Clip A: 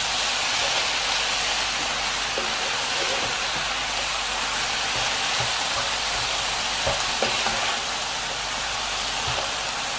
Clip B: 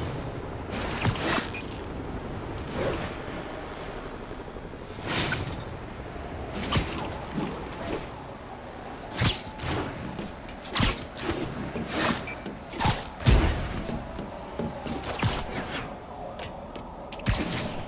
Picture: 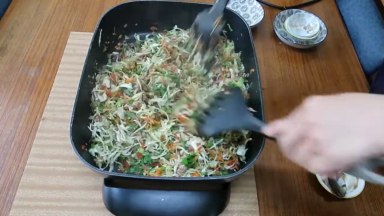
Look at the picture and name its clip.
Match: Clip A